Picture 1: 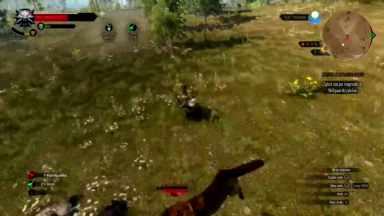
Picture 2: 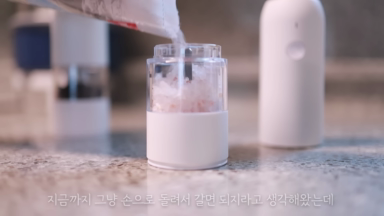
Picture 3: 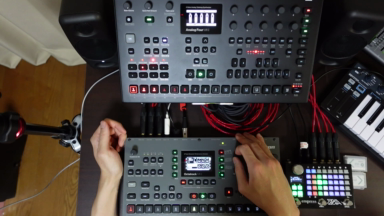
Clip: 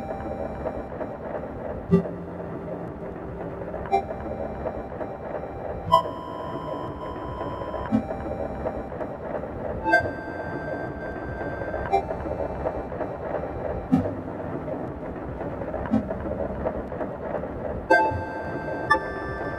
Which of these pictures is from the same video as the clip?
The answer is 3